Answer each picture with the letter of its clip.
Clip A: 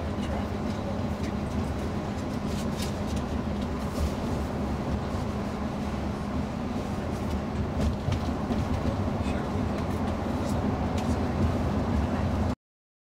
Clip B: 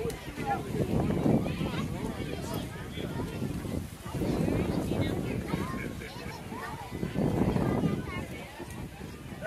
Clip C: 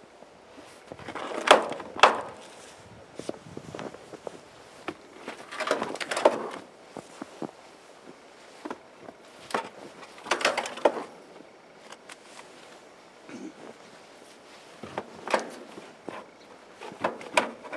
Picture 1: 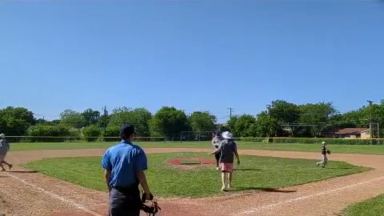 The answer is B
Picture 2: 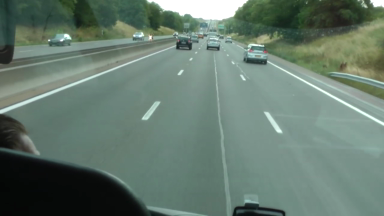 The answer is A